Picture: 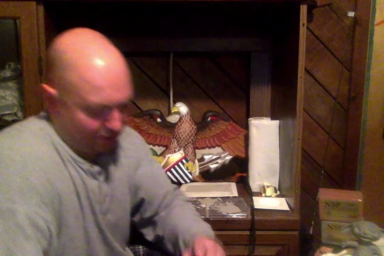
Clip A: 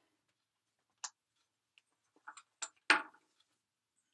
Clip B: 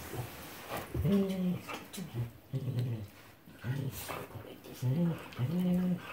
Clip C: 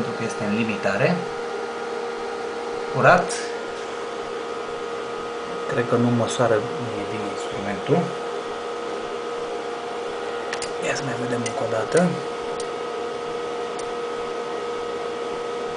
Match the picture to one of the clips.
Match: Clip A